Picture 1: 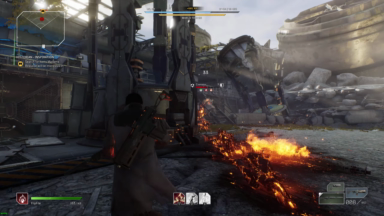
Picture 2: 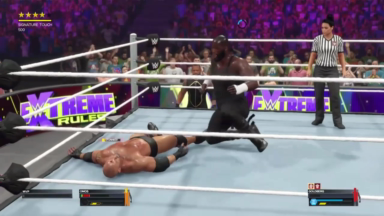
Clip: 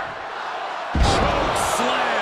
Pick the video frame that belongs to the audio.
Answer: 2